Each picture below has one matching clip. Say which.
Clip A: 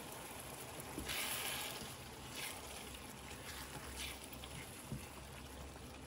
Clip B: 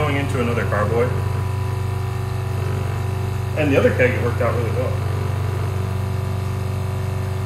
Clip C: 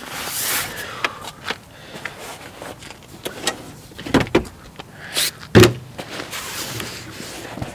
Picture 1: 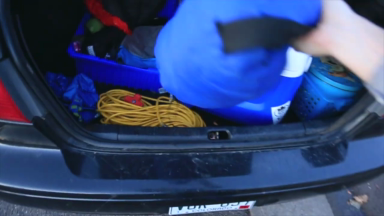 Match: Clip C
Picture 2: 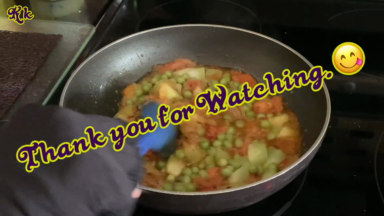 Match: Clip A